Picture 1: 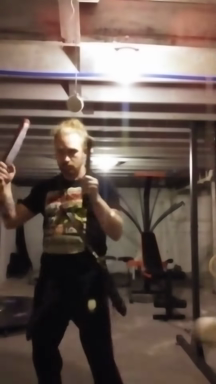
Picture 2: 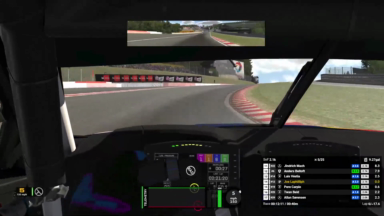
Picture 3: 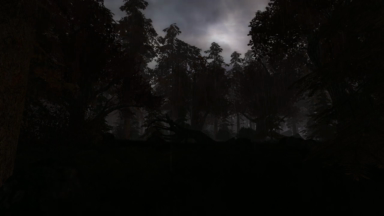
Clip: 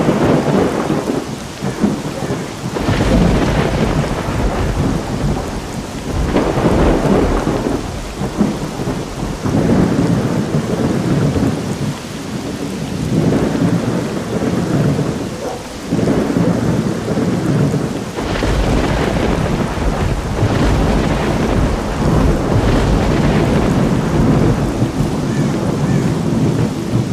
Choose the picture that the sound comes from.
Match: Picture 3